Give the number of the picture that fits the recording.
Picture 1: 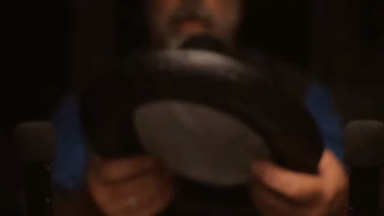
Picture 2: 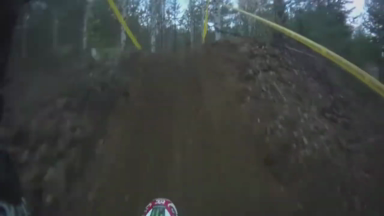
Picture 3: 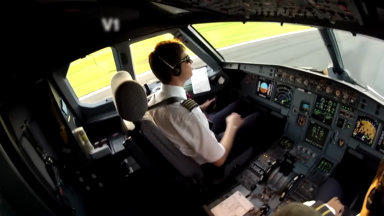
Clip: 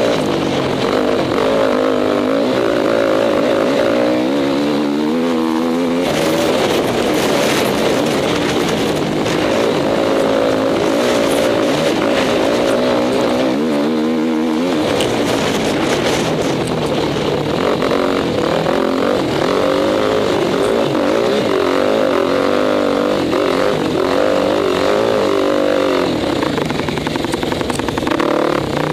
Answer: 2